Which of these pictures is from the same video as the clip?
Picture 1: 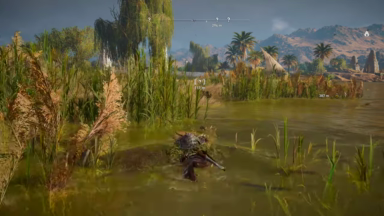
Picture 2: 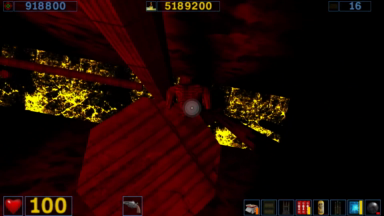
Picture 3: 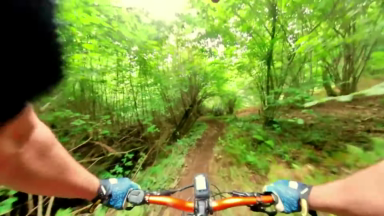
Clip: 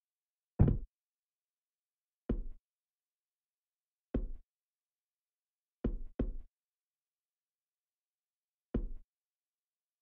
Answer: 2